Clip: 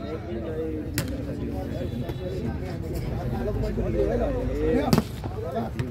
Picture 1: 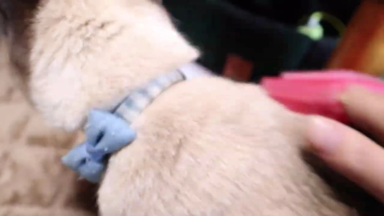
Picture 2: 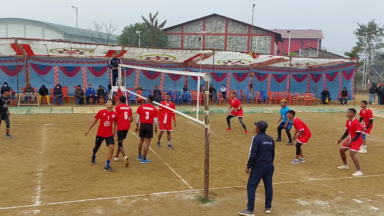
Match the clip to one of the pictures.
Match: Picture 2